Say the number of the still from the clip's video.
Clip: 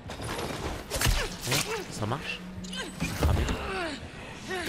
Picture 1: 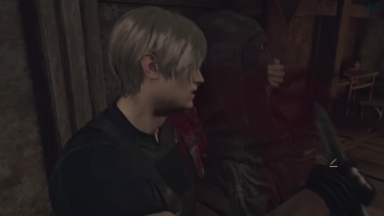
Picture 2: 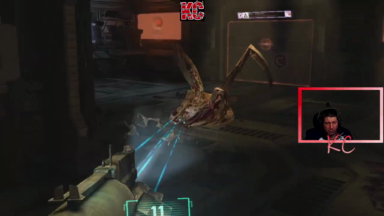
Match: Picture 1